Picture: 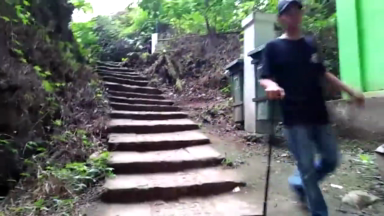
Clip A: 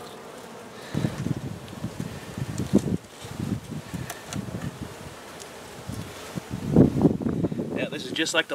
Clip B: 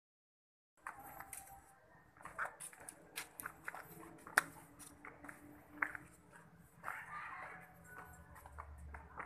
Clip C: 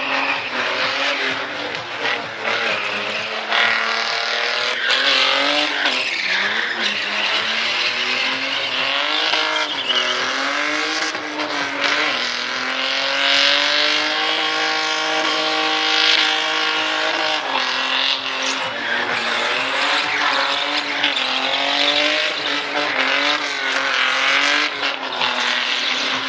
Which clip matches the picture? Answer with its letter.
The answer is B